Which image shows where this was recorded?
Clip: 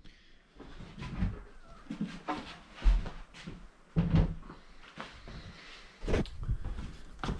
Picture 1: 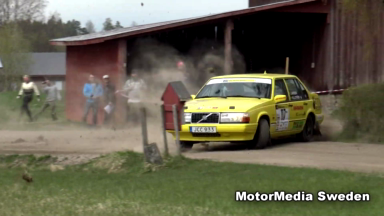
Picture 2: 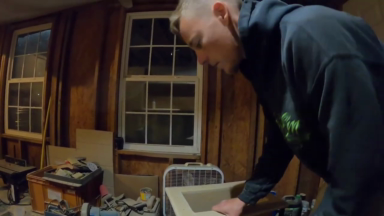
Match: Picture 2